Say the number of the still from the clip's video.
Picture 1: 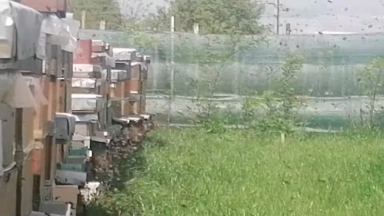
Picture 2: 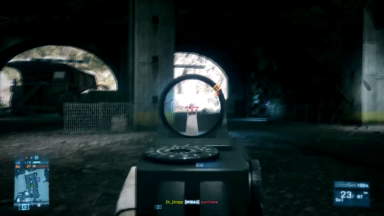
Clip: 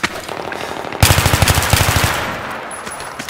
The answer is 2